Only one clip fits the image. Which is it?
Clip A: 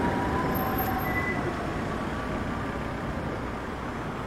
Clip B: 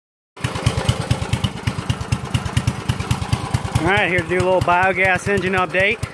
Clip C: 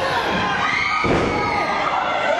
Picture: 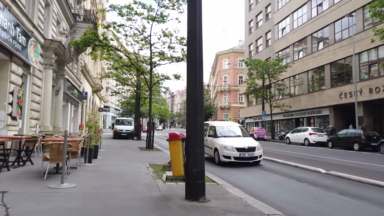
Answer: A